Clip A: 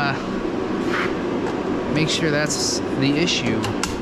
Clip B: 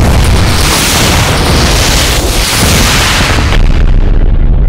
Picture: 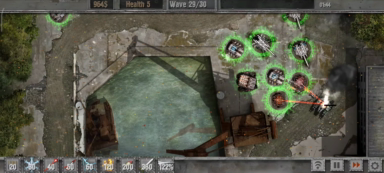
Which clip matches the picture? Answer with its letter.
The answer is B